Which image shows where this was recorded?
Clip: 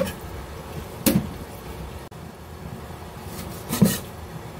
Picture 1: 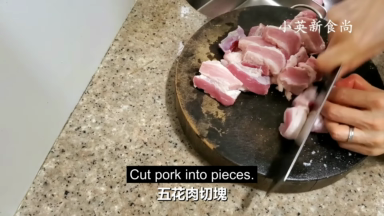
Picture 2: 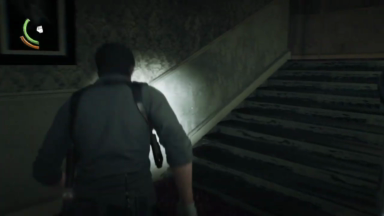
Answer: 1